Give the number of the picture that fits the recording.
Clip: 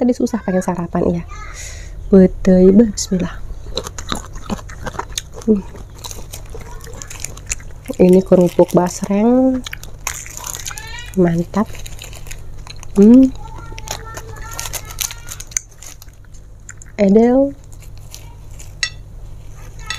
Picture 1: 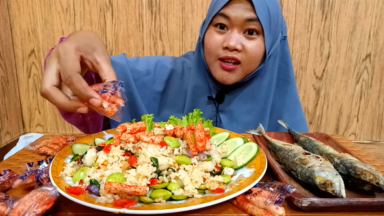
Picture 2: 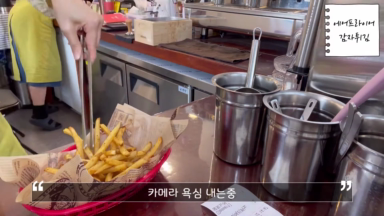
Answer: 1